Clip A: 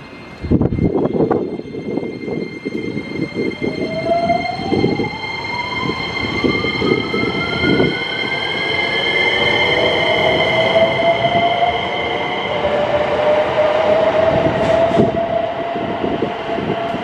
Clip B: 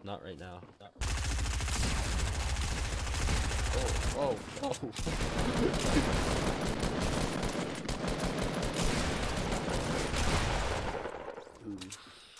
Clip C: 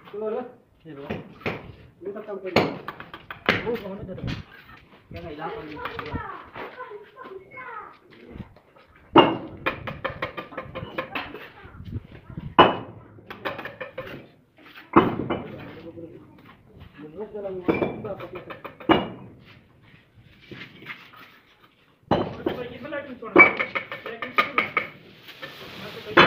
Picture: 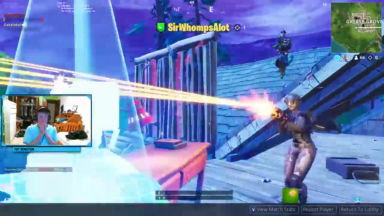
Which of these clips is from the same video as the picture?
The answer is B